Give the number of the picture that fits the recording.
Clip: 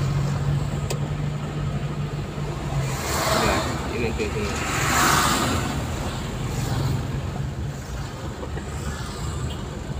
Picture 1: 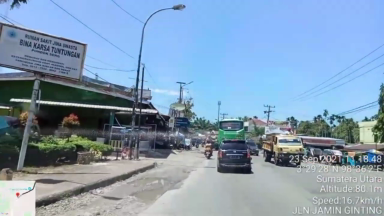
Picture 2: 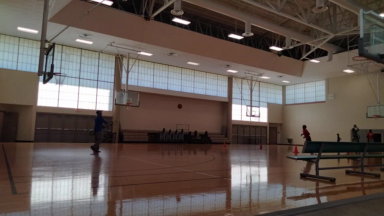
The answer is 1